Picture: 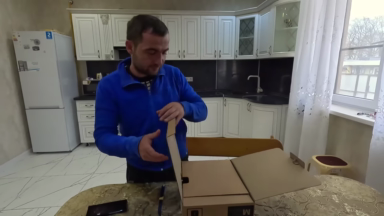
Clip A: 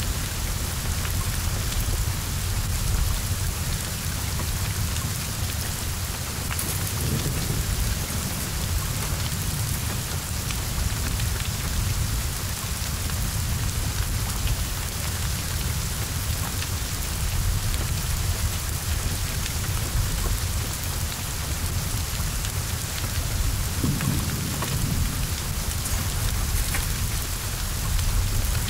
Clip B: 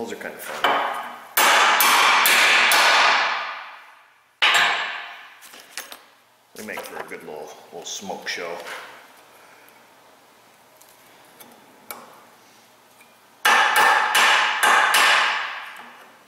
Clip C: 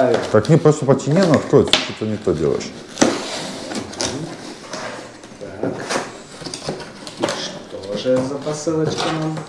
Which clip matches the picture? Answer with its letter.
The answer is C